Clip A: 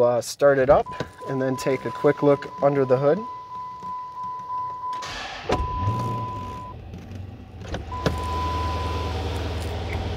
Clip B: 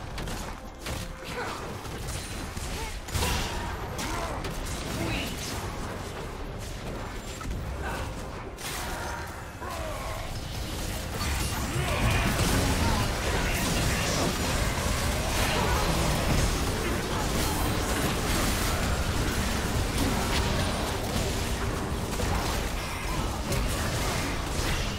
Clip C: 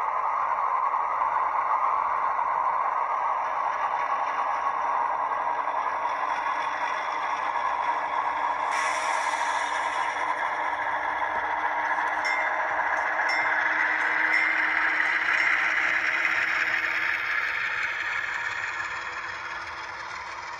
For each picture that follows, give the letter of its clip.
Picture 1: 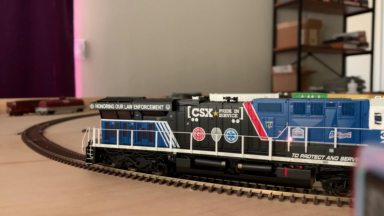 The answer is C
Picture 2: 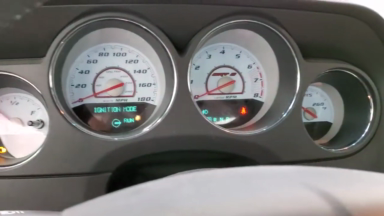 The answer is A